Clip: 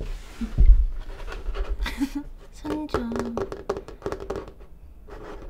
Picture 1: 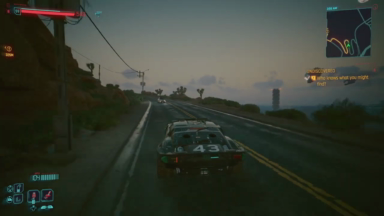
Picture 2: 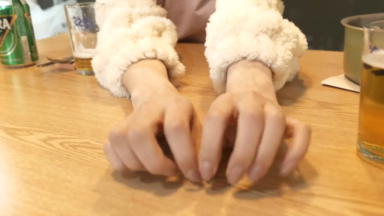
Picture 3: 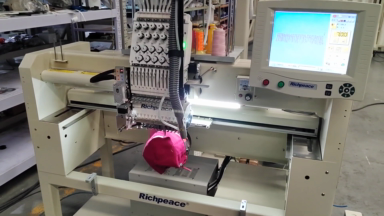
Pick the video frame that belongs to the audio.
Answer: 2